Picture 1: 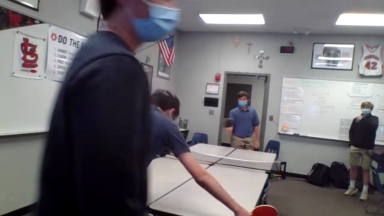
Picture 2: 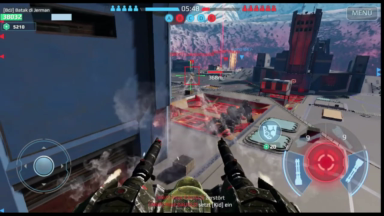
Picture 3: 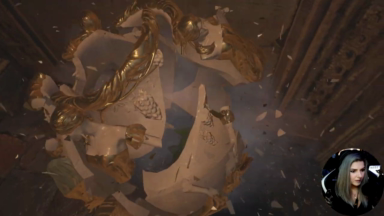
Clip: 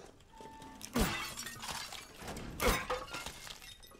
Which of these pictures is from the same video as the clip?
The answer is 3